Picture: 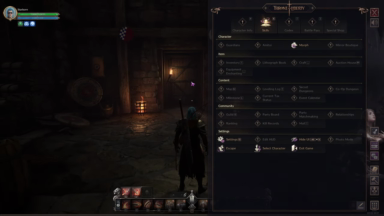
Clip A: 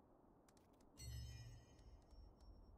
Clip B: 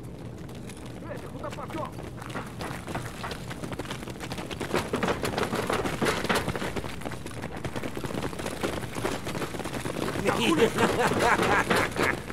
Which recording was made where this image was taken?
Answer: A